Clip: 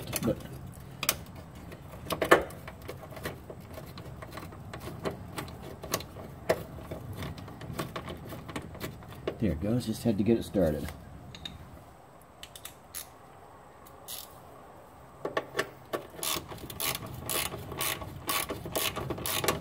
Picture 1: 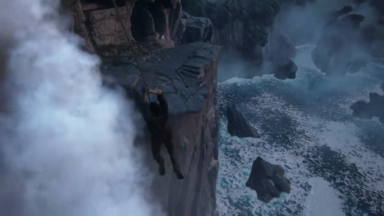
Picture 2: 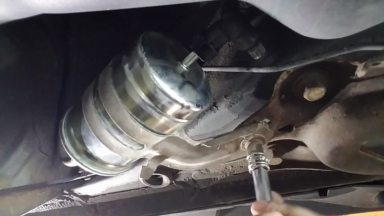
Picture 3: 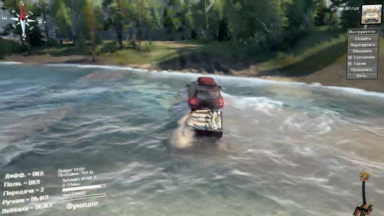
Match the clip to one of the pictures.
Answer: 2